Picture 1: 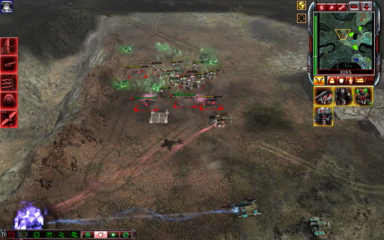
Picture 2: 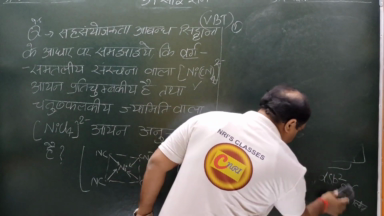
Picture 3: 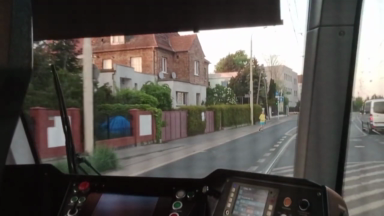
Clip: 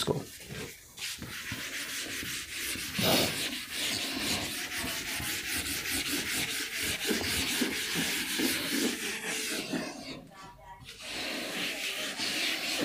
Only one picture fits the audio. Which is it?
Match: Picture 2